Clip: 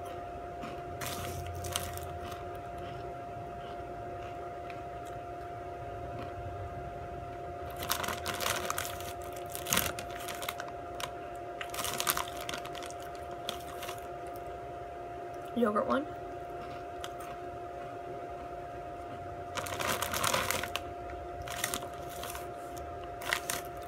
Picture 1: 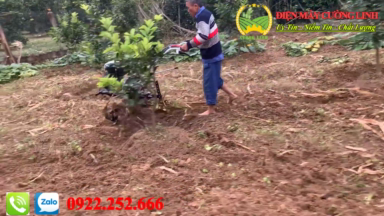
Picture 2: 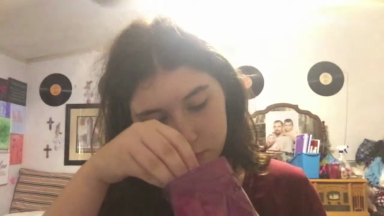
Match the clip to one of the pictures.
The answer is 2